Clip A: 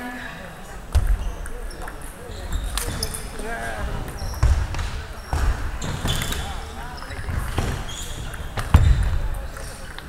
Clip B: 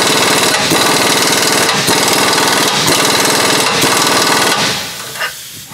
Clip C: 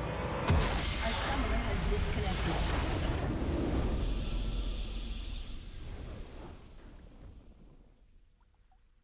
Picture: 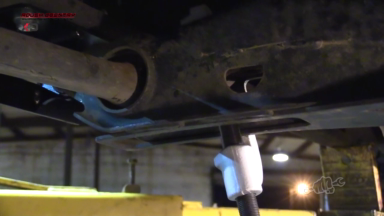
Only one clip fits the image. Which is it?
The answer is B